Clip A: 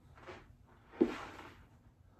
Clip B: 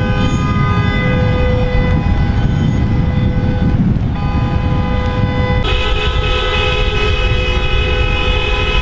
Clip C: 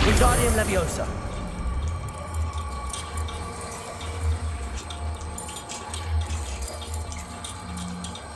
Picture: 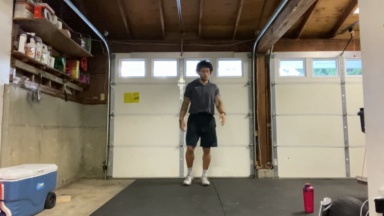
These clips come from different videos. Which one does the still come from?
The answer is A